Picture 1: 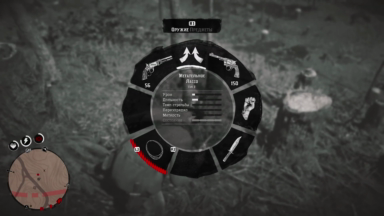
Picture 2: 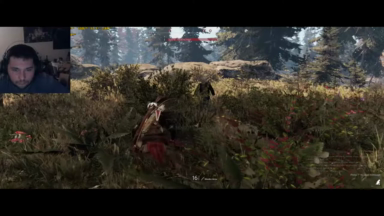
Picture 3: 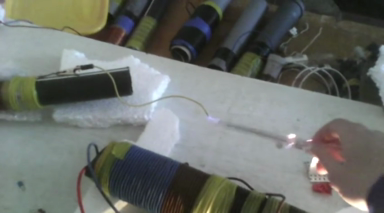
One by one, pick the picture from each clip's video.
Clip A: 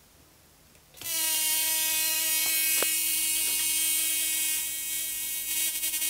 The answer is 3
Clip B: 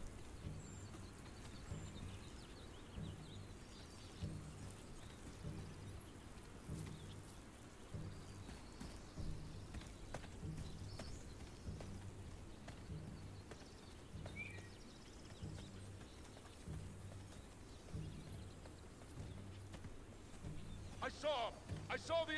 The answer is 2